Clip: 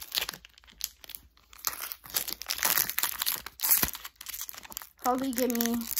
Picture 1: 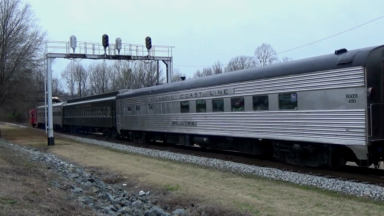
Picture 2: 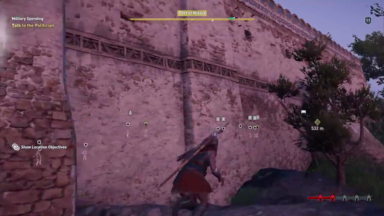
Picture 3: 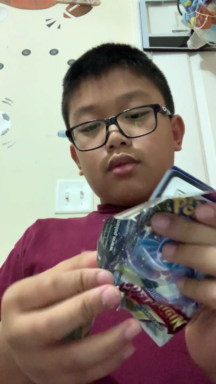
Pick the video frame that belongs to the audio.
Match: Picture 3